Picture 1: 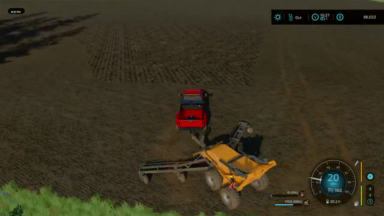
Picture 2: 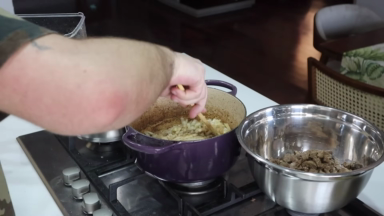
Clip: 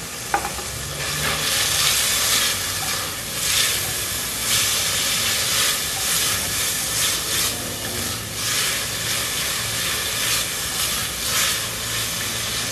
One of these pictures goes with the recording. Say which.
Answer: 2